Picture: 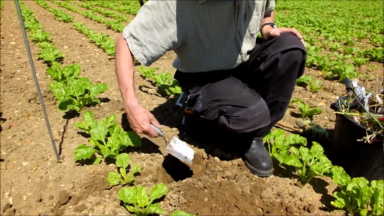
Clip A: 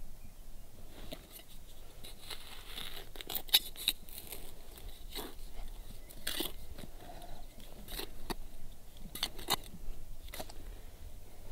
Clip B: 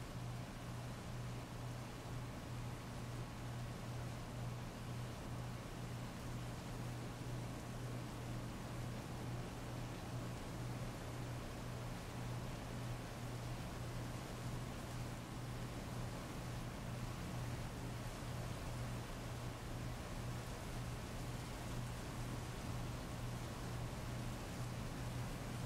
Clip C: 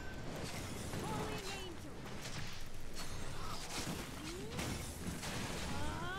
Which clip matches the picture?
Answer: A